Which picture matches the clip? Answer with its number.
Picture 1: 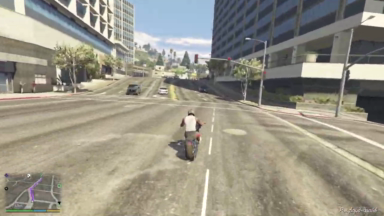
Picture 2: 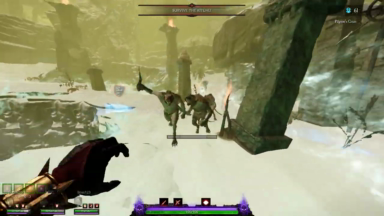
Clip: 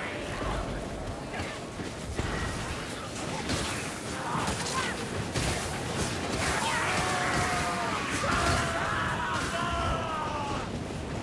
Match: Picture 2